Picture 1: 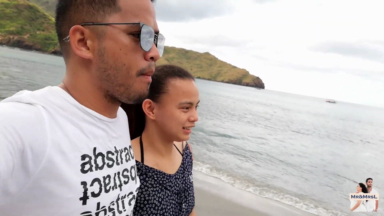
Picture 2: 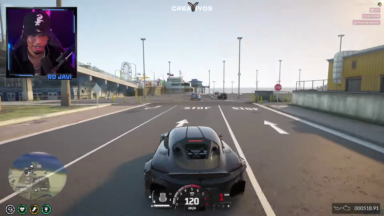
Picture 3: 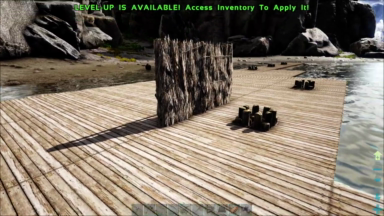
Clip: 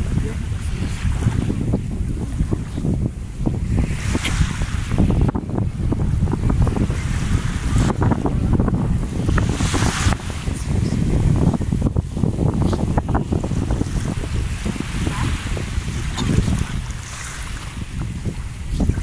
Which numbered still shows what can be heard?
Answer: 1